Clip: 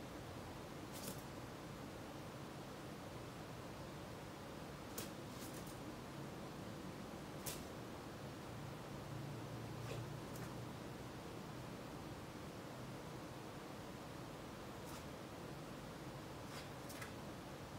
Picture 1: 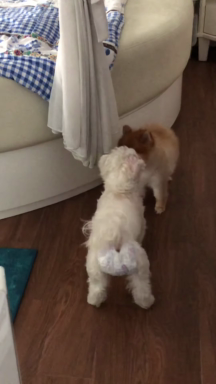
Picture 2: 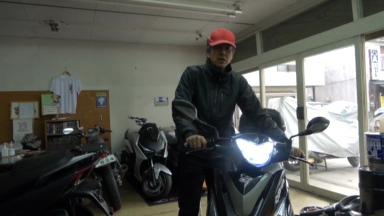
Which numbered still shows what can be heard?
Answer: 1